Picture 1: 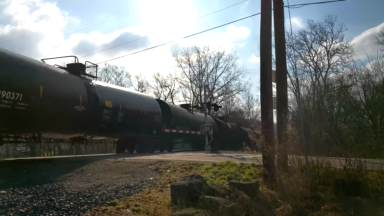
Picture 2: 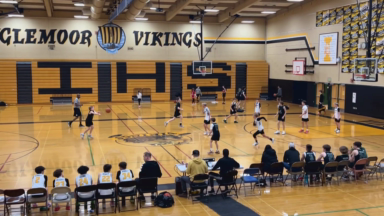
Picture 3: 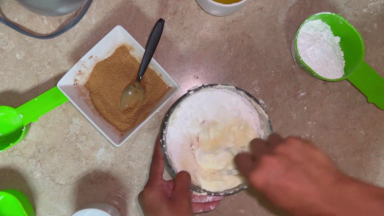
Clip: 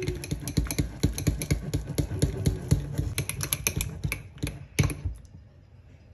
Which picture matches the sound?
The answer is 3